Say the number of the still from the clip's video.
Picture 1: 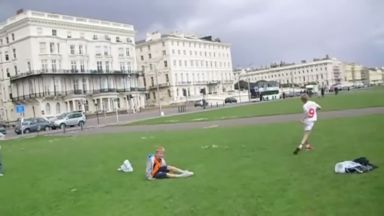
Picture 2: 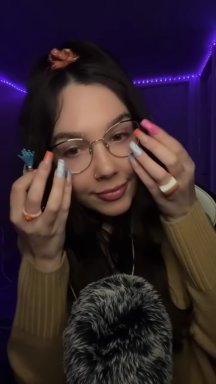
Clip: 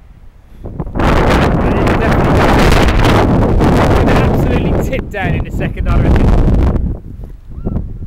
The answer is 1